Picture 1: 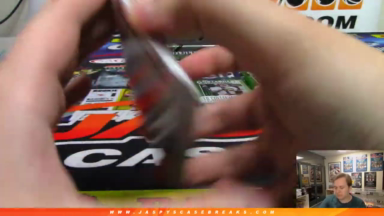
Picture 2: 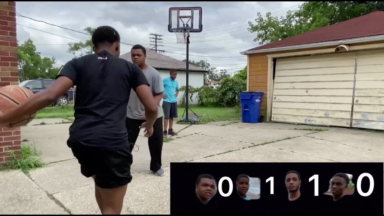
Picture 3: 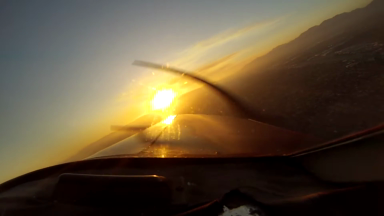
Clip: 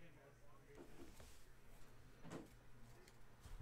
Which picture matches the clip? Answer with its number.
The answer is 1